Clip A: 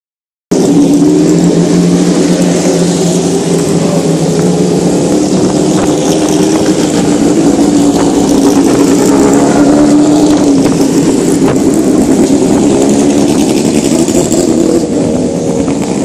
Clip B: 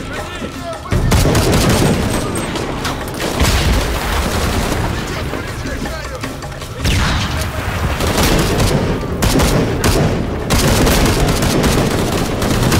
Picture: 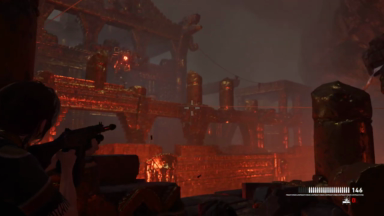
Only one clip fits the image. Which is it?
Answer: B